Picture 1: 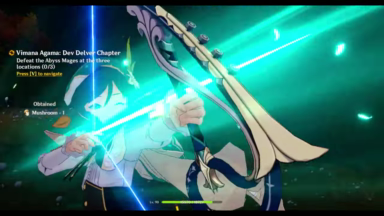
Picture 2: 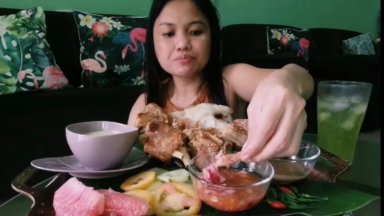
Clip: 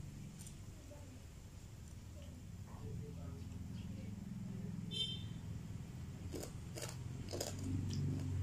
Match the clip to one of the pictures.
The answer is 2